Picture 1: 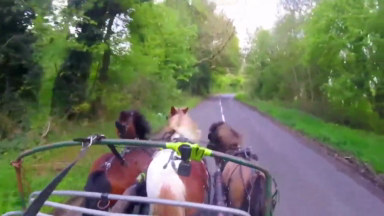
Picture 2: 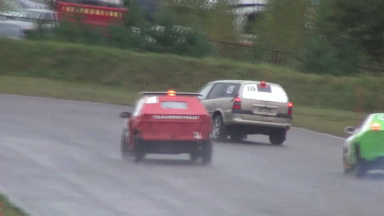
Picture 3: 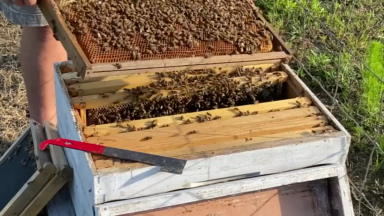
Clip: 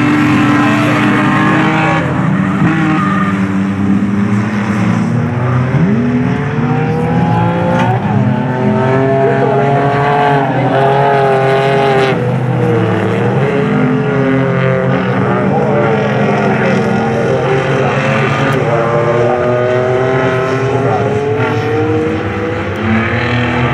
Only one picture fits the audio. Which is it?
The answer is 2